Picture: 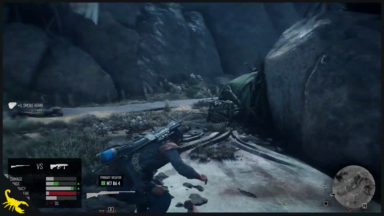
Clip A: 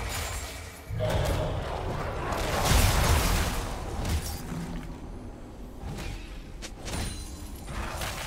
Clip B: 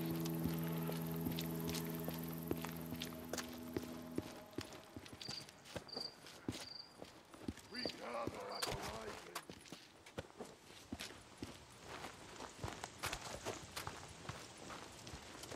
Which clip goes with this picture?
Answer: B